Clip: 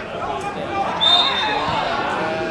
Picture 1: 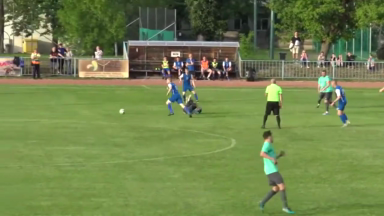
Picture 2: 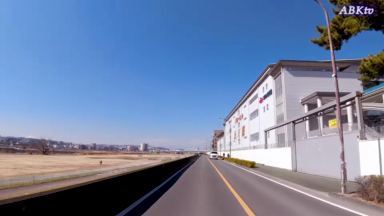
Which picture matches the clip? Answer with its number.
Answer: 1